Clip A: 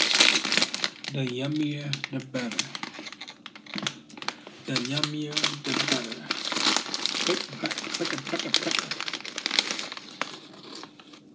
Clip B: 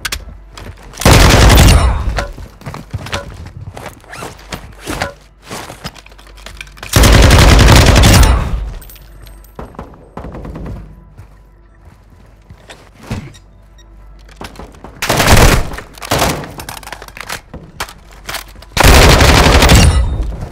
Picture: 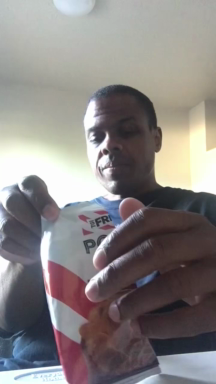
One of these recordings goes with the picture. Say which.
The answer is A